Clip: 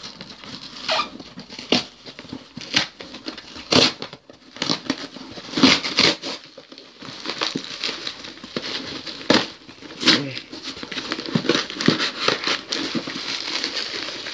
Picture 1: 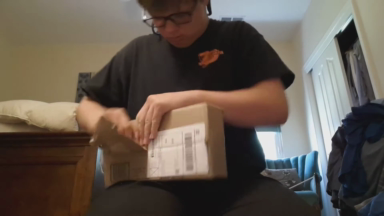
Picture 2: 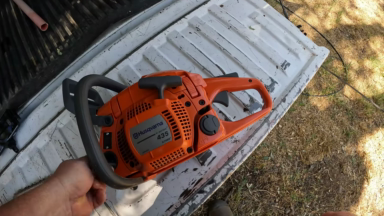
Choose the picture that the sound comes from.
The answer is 1